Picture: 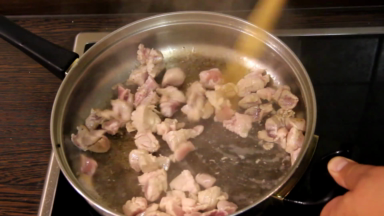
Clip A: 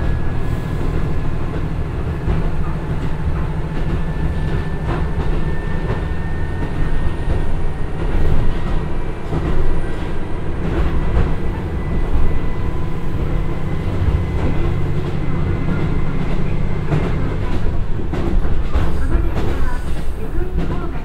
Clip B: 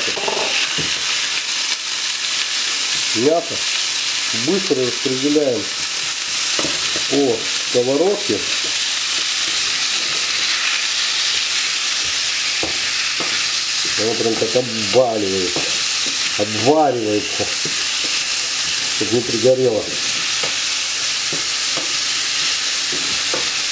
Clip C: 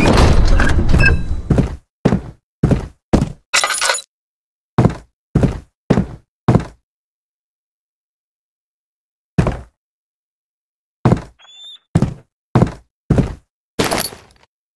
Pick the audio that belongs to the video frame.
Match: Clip B